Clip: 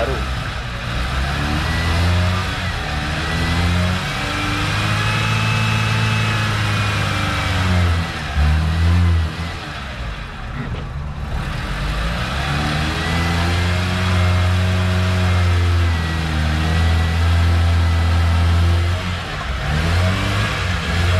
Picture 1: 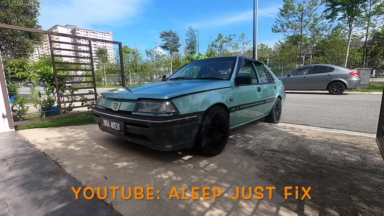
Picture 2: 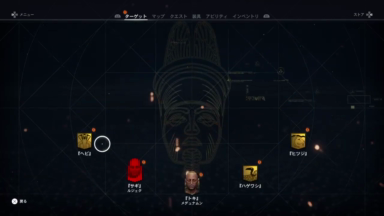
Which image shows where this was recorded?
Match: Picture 1